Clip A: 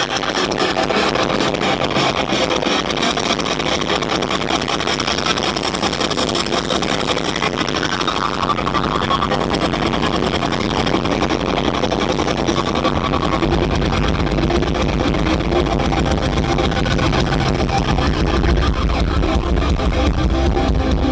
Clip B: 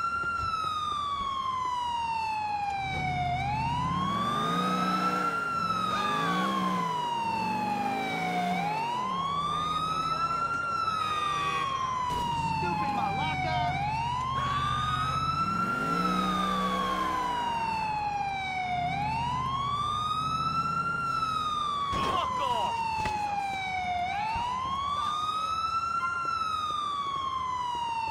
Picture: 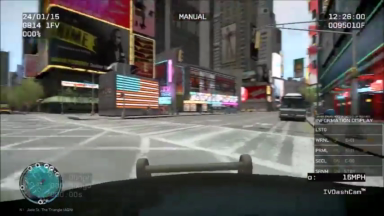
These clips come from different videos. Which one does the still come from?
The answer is B